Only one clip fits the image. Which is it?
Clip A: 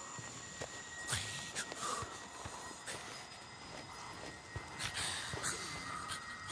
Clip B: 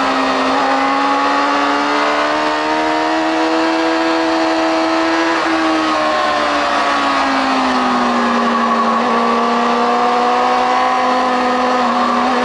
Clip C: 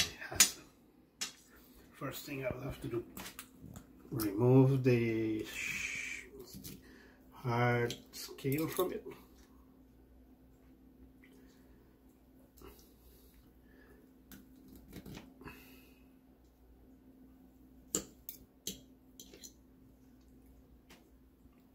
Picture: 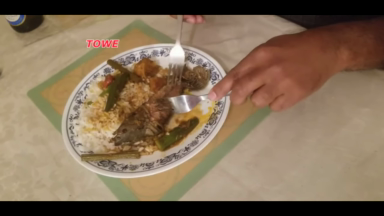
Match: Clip C